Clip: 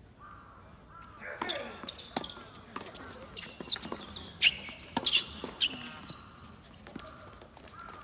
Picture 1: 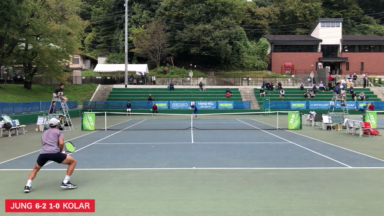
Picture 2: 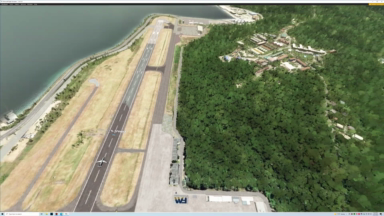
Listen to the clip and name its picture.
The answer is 1